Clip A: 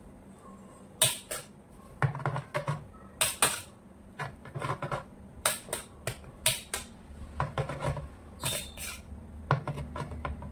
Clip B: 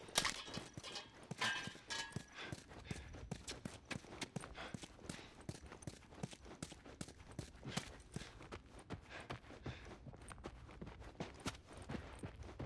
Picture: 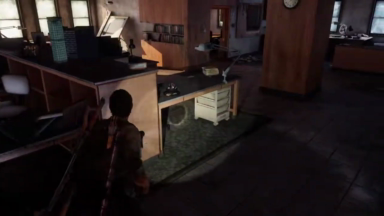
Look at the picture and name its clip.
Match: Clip B